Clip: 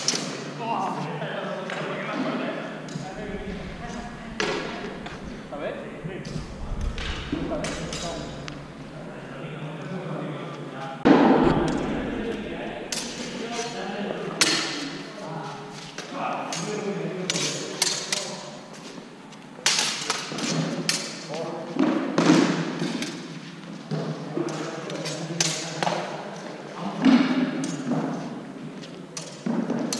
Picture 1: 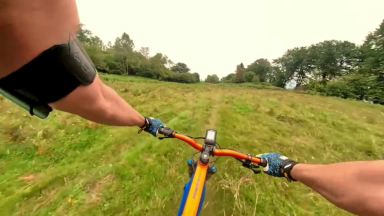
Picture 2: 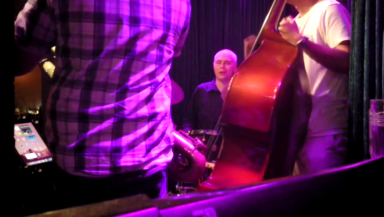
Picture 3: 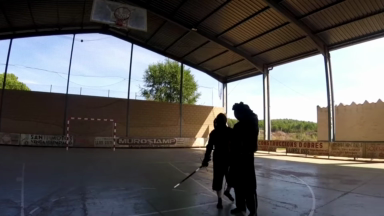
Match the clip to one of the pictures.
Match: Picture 3